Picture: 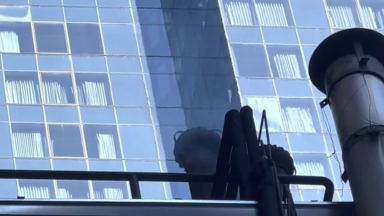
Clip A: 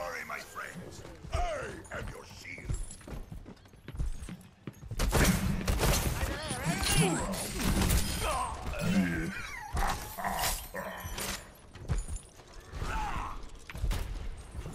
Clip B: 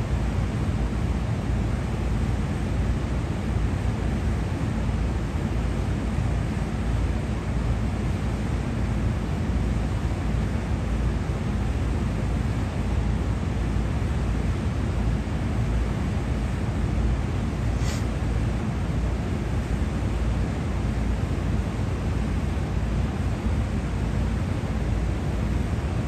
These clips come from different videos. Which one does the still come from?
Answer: B